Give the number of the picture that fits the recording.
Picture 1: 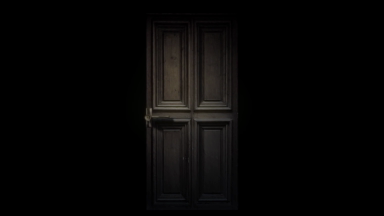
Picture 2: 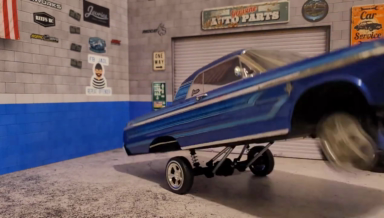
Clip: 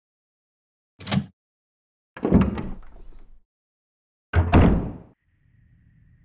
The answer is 1